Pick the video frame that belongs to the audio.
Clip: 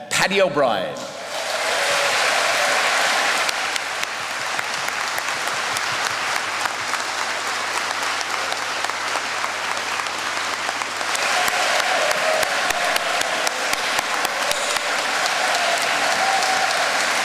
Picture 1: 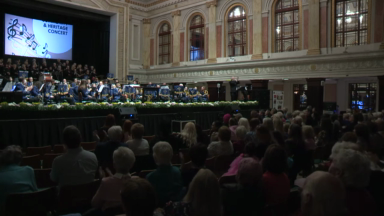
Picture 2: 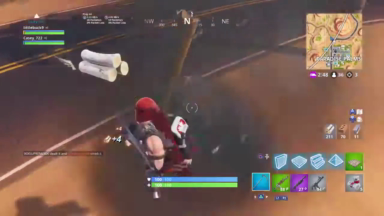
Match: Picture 1